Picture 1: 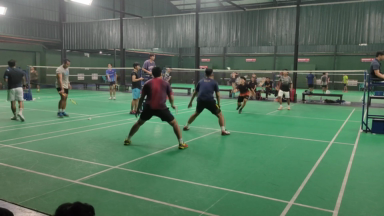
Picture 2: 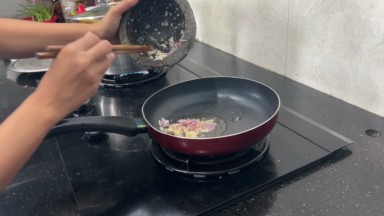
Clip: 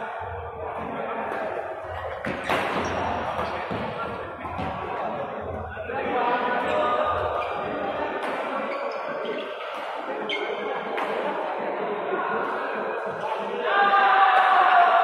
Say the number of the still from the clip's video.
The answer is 1